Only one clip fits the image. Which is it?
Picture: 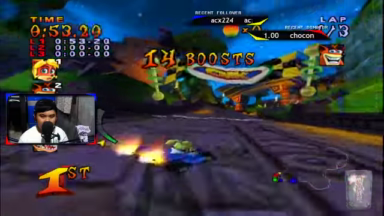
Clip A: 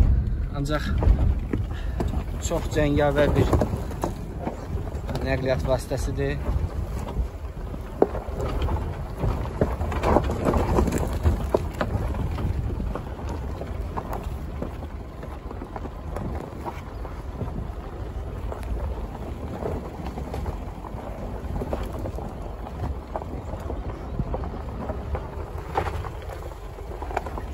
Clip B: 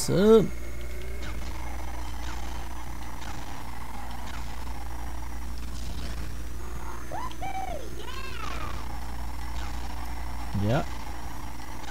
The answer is B